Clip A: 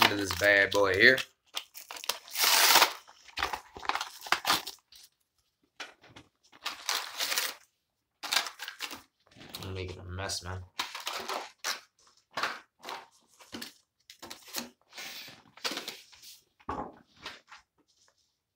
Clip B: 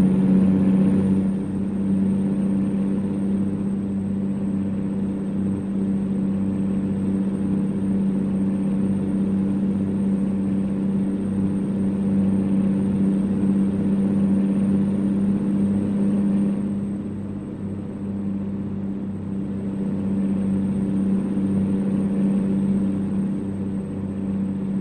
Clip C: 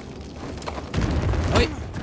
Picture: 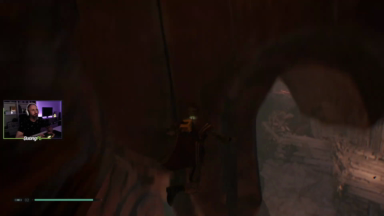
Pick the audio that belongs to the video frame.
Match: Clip C